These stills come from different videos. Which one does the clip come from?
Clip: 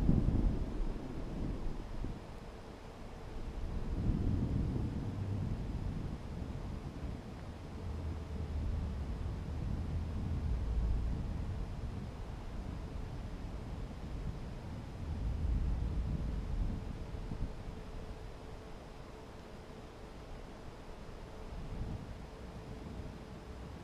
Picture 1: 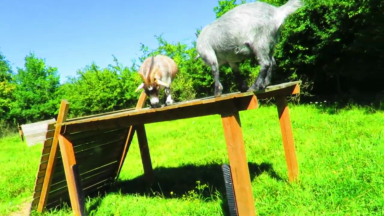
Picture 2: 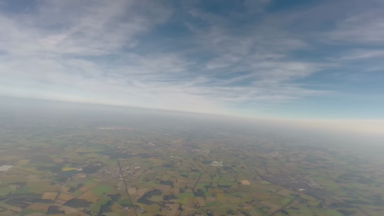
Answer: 2